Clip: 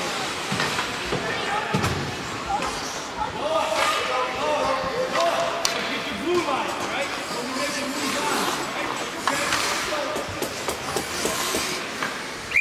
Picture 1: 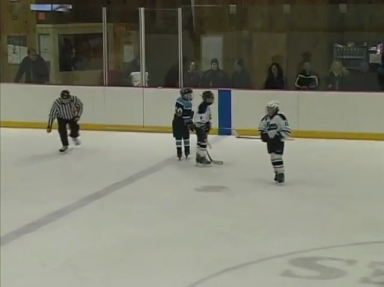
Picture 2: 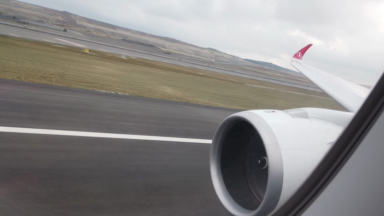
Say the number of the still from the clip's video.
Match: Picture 1